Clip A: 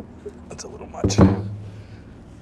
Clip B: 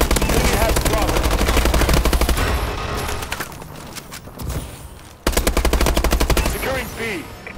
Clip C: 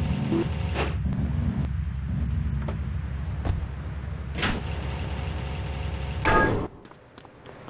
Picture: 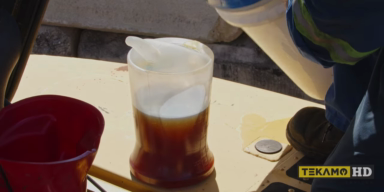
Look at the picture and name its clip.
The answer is A